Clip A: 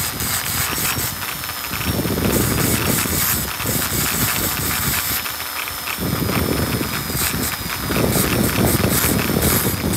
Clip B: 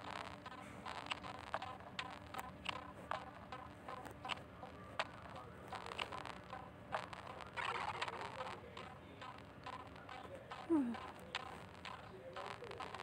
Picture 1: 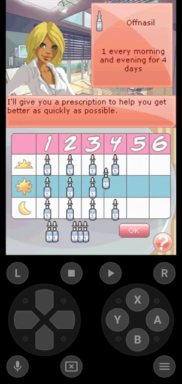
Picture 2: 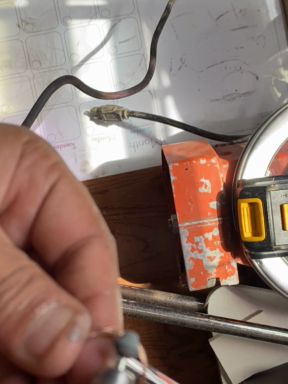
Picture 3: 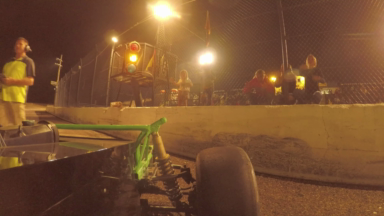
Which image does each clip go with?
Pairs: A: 2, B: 1